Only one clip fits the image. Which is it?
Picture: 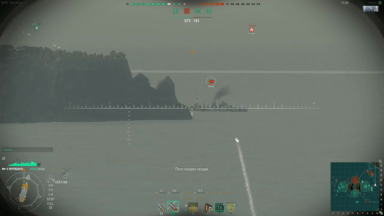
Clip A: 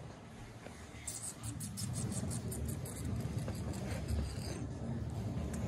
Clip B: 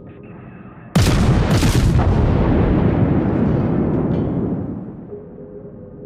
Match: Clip B